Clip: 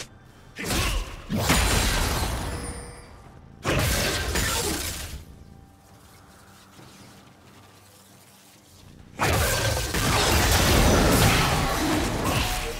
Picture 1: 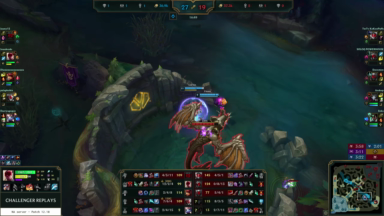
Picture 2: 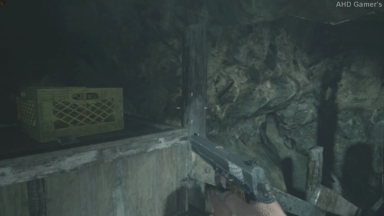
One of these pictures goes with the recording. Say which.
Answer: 1